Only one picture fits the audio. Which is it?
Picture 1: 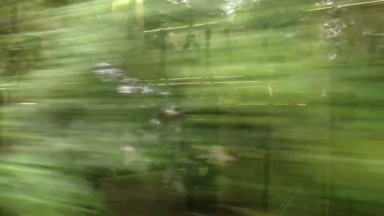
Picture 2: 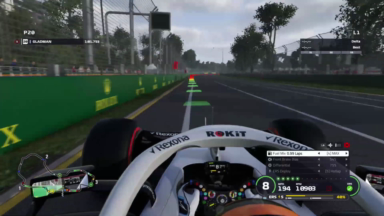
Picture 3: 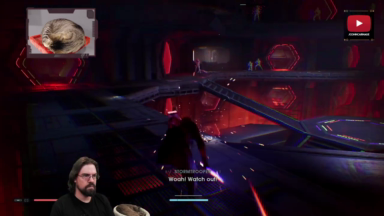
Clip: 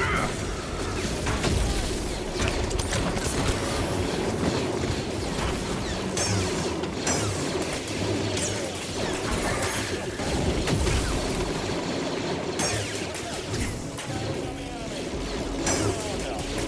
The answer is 3